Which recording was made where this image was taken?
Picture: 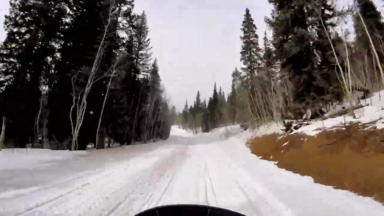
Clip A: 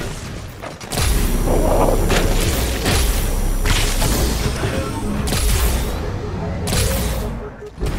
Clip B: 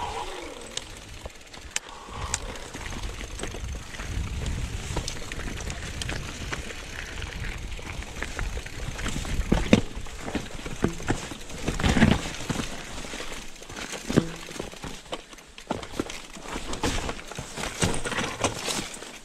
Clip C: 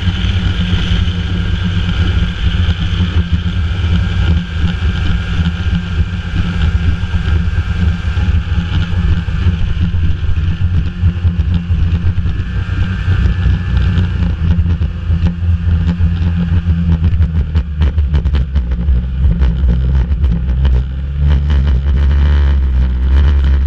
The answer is C